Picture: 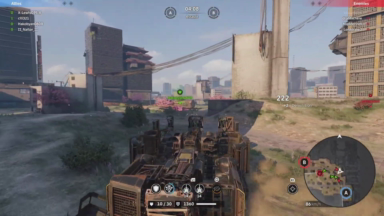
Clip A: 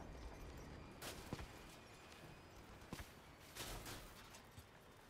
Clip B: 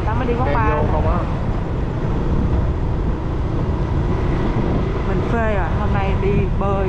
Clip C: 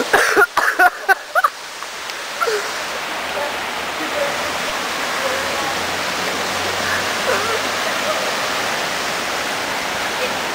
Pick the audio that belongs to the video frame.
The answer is A